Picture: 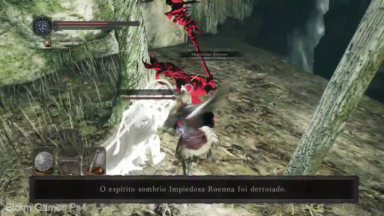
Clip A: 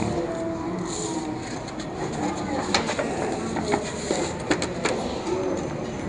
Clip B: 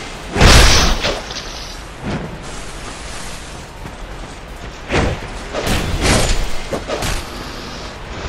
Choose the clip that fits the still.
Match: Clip B